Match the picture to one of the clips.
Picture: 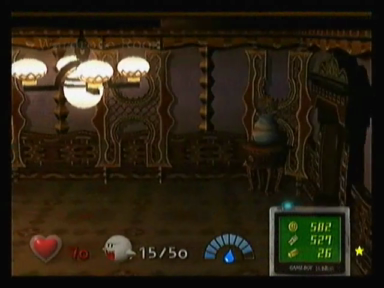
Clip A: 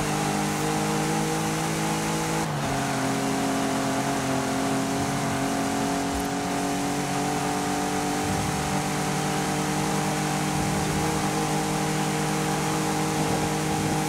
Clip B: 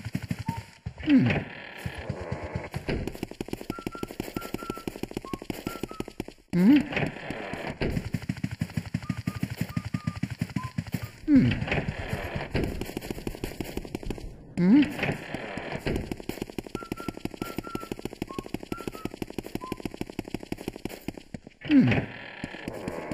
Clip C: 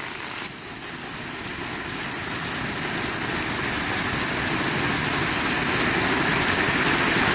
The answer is B